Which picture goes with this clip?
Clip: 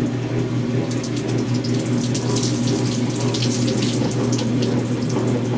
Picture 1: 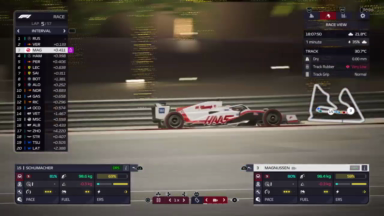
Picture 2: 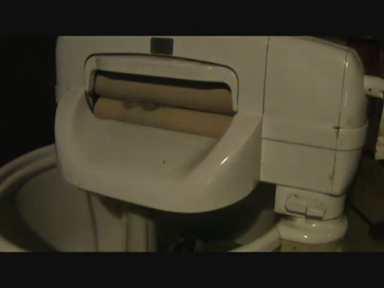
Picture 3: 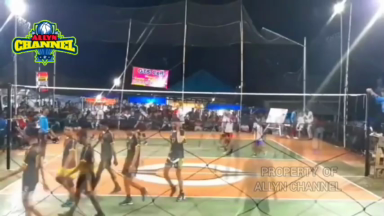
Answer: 2